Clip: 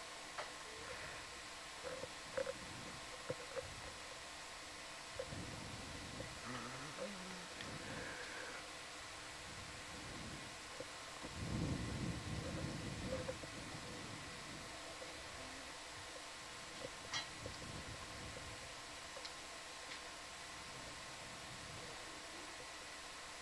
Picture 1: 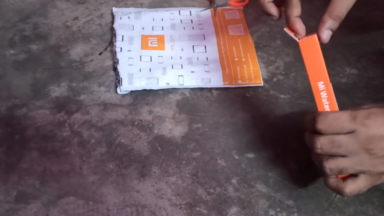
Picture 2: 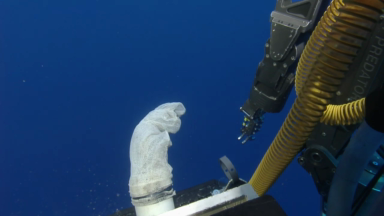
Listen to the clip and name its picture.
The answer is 2